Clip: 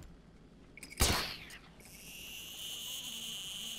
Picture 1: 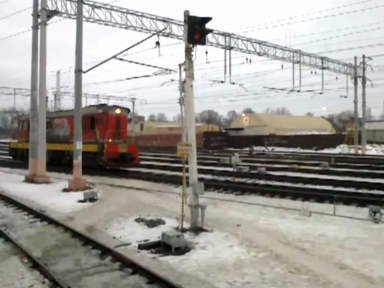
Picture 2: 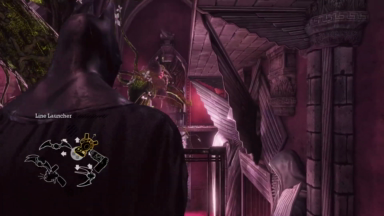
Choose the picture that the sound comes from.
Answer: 2